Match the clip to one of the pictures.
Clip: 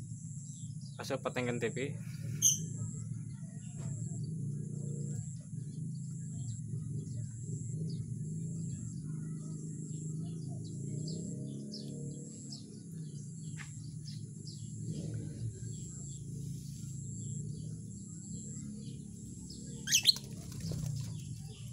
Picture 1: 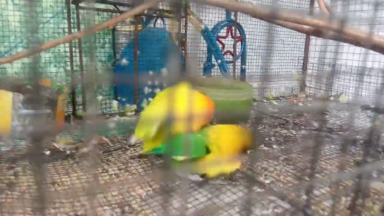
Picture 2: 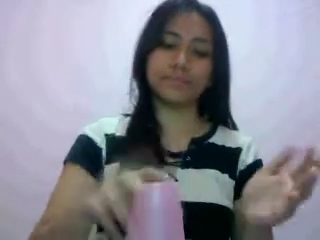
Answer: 1